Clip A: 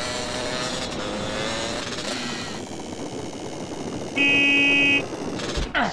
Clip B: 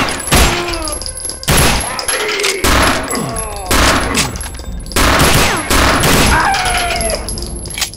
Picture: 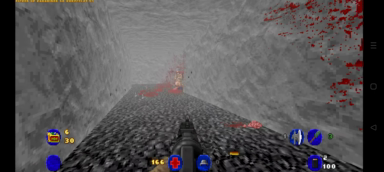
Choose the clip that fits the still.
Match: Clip B